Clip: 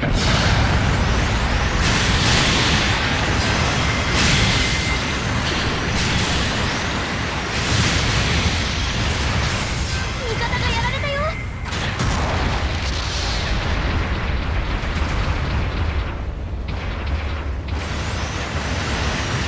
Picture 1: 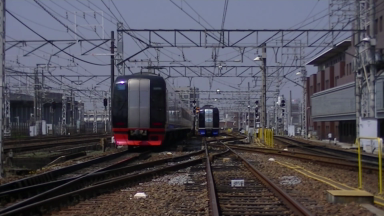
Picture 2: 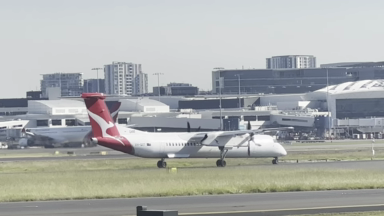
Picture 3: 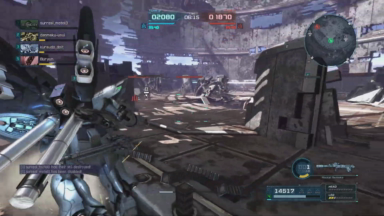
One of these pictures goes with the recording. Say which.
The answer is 3